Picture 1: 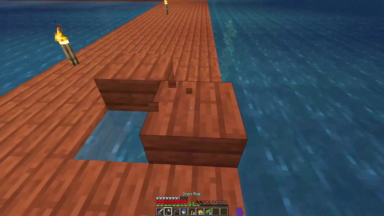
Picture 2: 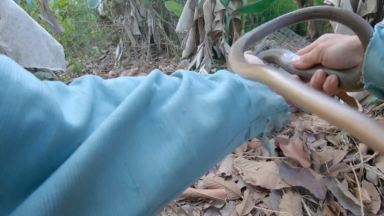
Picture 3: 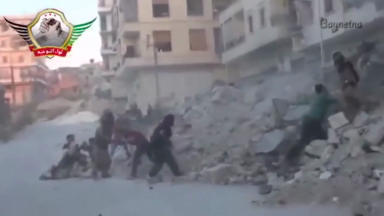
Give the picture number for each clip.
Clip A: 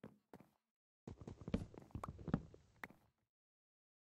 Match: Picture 1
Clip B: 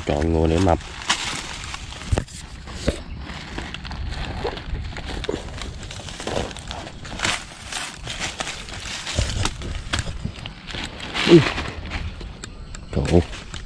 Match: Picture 2